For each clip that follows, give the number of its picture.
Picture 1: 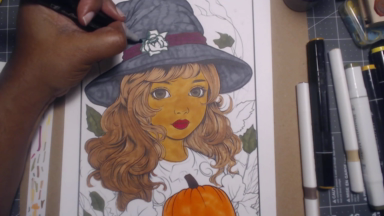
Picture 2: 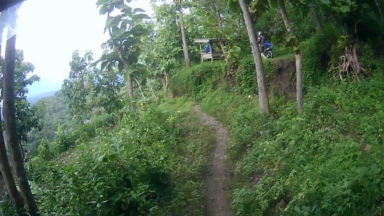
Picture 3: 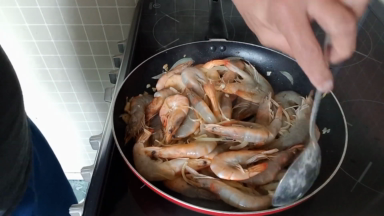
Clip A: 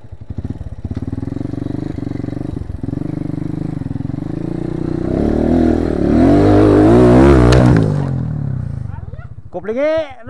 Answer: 2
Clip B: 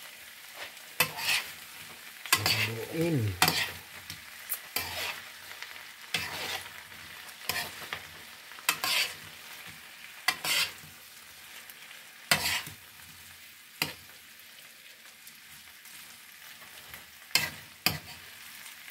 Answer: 3